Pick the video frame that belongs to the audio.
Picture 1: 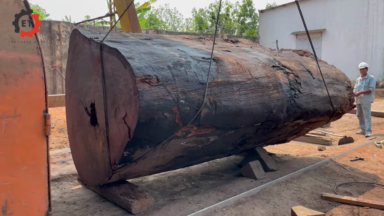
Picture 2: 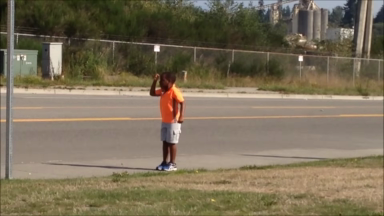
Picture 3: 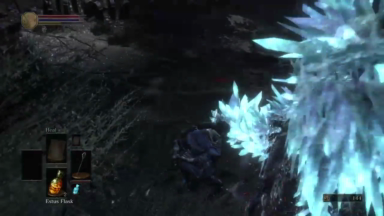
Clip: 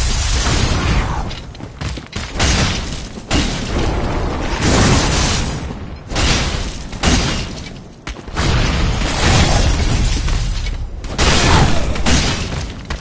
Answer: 3